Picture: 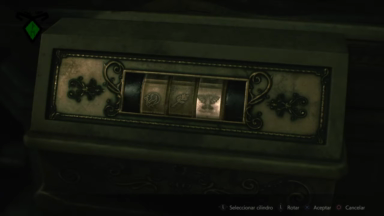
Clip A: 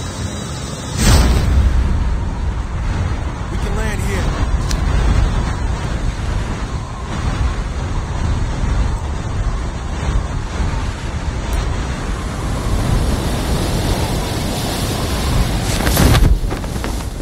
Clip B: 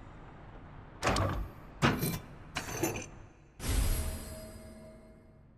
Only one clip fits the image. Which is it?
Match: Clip B